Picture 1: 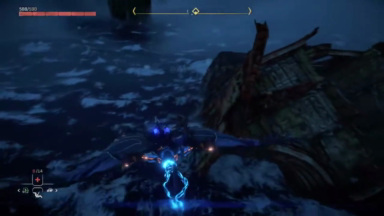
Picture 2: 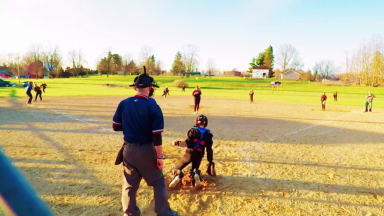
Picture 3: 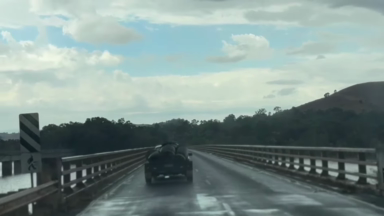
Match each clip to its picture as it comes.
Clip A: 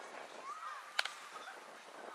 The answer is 2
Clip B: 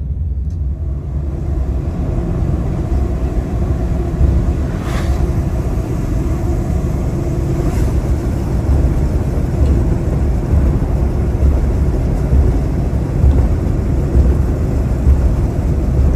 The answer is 3